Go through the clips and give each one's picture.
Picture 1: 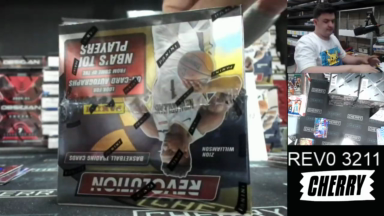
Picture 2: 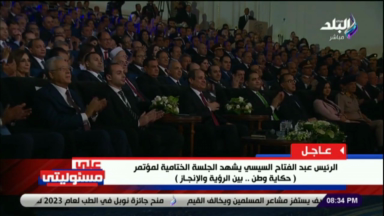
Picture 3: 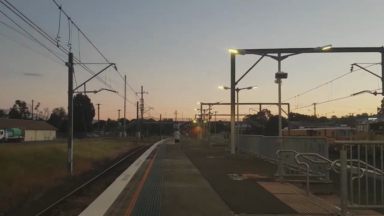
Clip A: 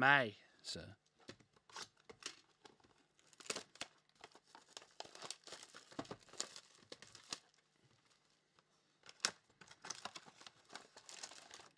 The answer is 1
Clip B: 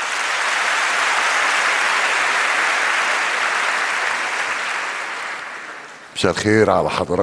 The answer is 2